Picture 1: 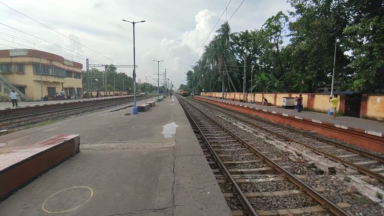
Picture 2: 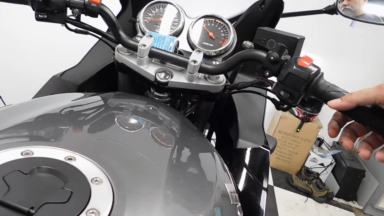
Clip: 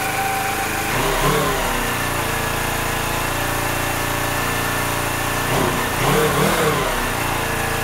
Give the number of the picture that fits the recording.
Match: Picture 2